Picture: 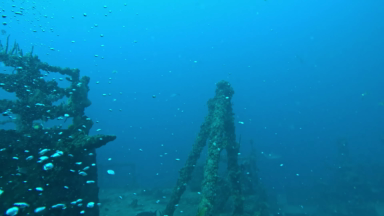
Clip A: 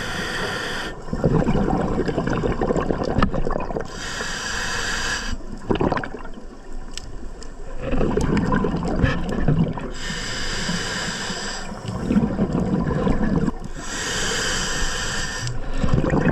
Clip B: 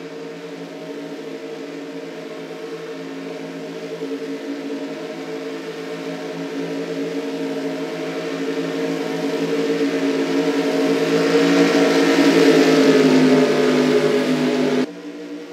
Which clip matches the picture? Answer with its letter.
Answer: A